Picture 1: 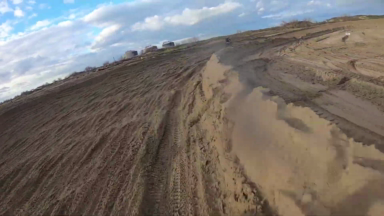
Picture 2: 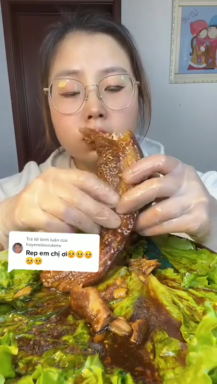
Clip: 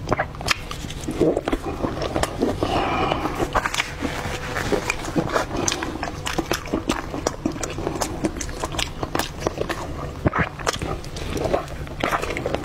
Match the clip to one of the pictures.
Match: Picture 2